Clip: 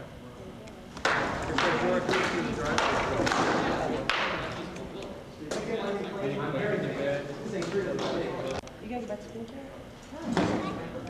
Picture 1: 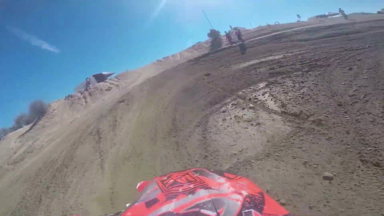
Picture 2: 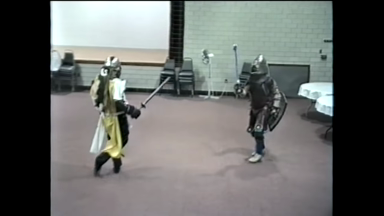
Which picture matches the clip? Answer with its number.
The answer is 2